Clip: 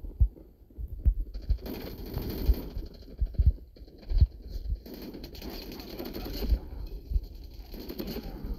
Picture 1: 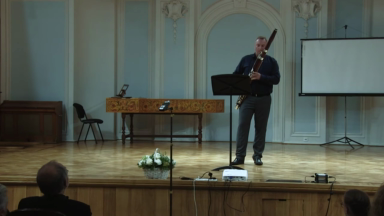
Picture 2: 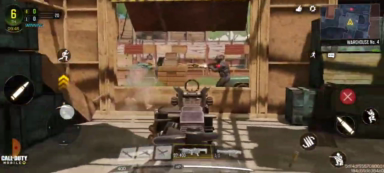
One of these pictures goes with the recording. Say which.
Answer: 2